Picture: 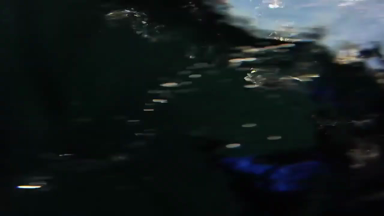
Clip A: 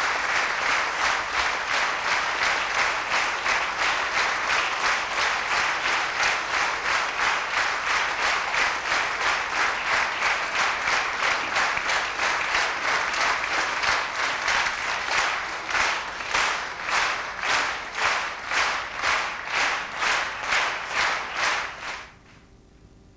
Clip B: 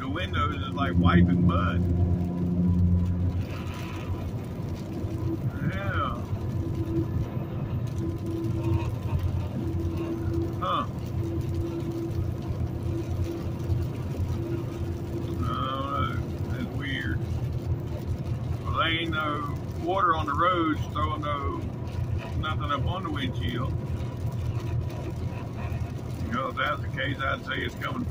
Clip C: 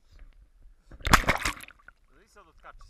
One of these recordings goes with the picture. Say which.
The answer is C